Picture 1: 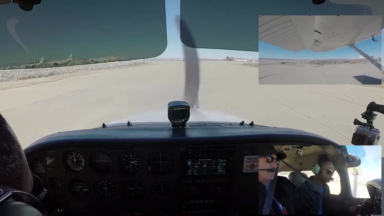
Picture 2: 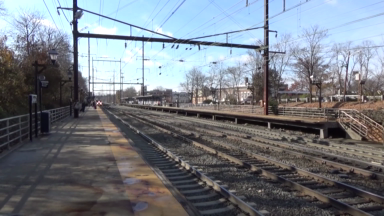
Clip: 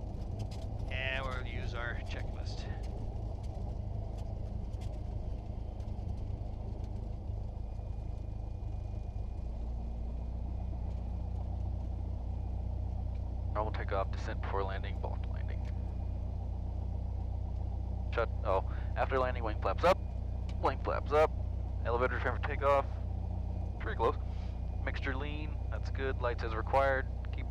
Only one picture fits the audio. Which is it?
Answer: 1